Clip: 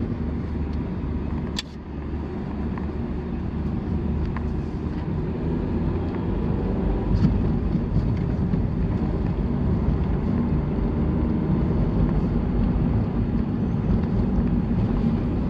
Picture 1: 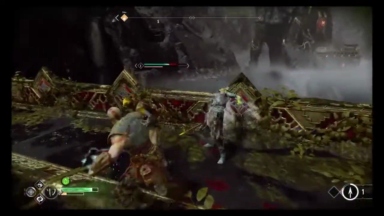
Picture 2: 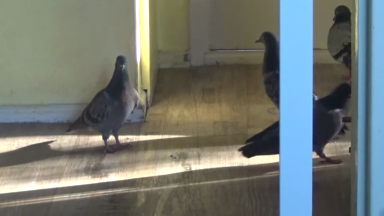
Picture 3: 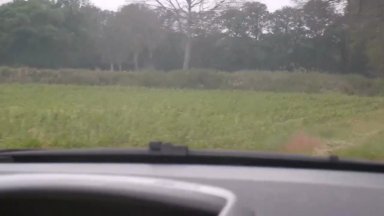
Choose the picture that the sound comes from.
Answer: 3